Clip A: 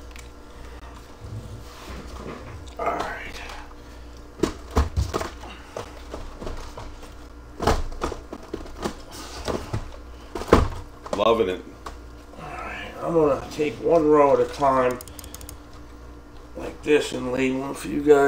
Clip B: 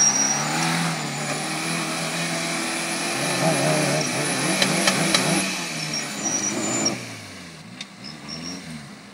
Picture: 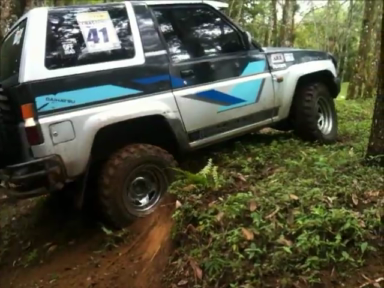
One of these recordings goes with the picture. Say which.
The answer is B